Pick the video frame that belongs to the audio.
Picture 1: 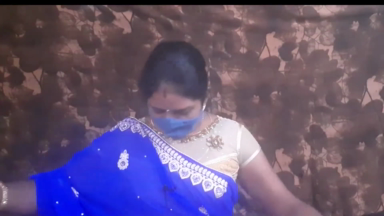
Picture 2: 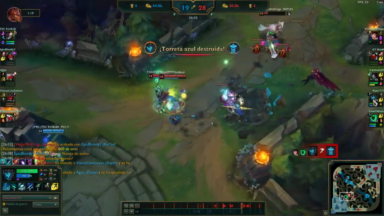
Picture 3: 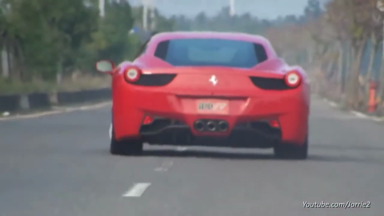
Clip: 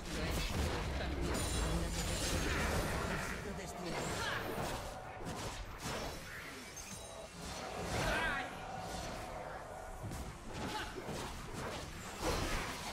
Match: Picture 2